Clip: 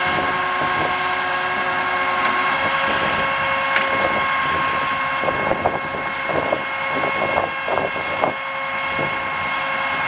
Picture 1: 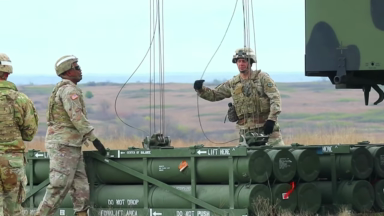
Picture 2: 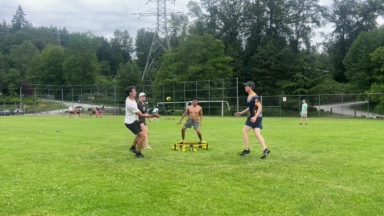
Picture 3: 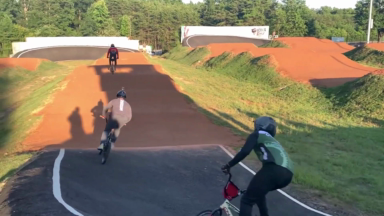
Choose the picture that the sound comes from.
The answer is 1